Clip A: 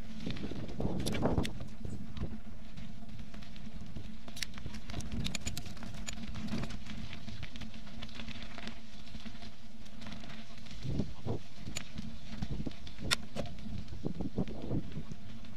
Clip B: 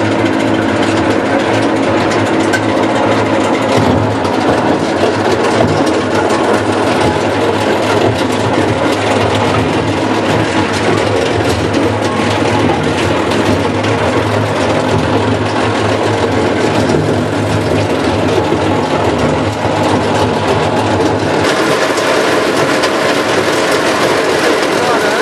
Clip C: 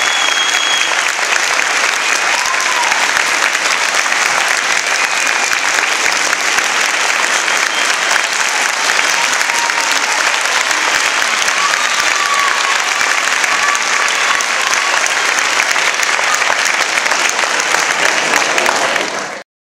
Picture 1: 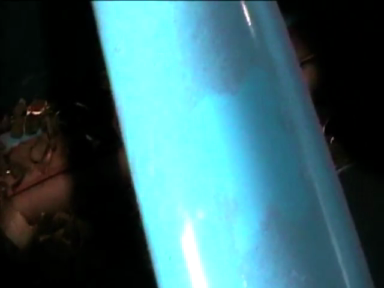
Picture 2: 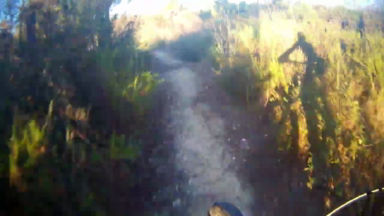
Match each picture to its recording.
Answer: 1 B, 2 A